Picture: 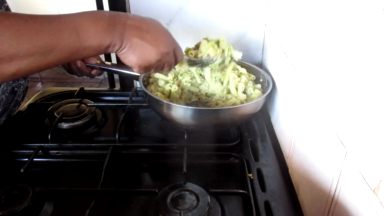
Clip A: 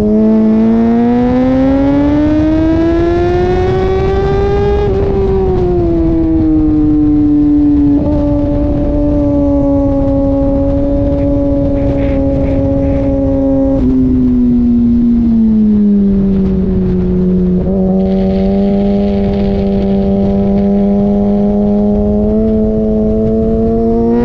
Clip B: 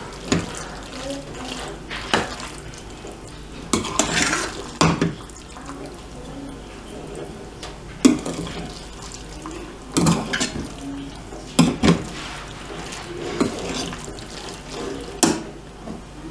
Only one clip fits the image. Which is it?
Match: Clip B